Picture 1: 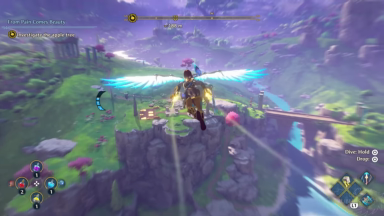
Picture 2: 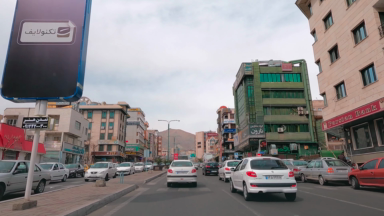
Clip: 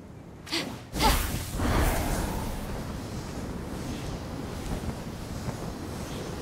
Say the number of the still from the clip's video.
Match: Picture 1